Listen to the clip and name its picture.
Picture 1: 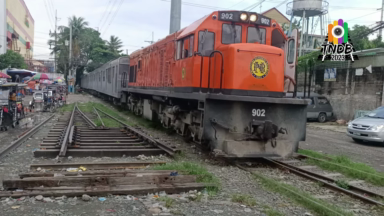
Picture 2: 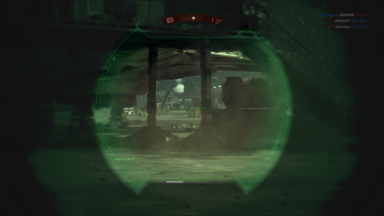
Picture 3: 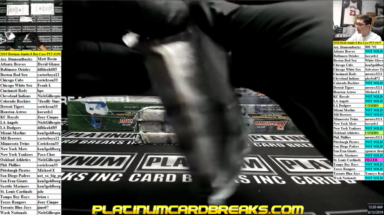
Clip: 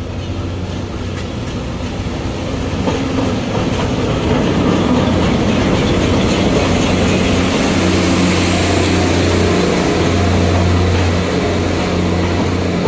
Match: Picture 1